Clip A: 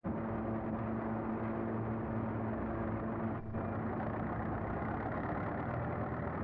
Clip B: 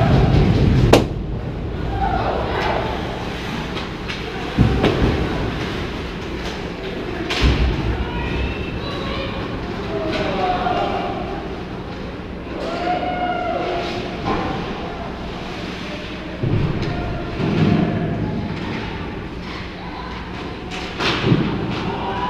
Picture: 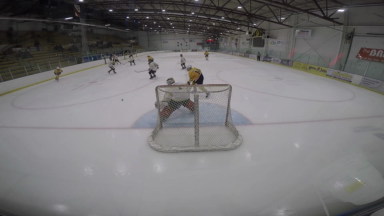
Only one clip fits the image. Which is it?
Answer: B